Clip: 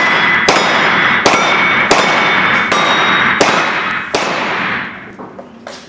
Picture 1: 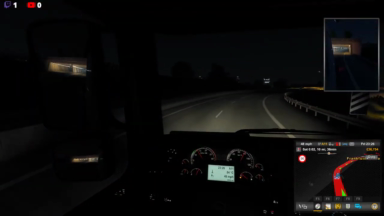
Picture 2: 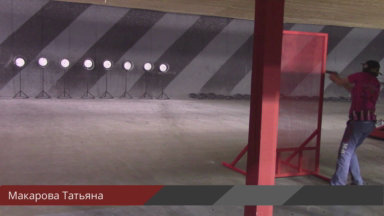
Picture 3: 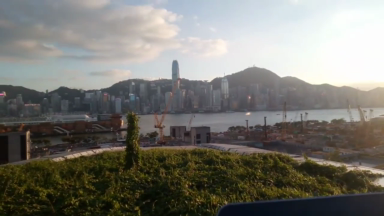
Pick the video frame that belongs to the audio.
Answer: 2